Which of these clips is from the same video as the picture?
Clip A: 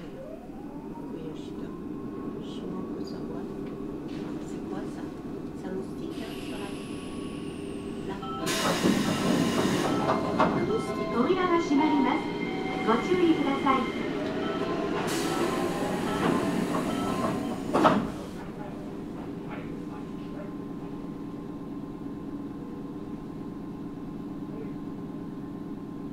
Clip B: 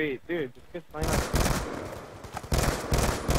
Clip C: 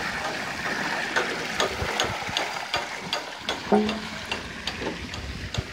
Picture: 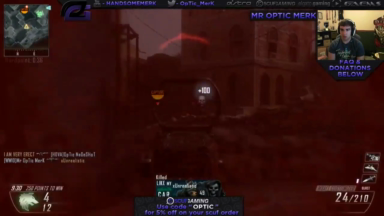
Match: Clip B